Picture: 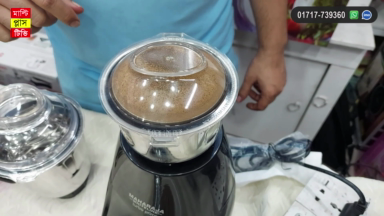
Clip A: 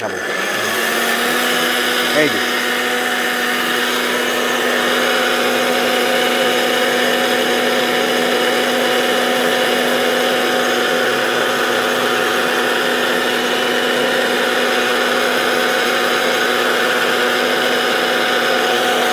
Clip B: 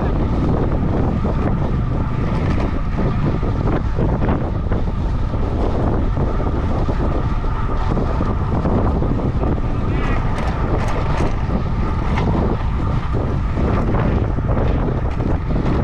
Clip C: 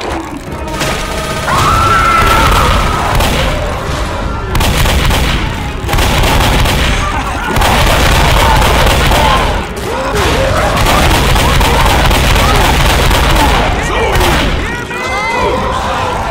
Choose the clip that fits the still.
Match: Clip A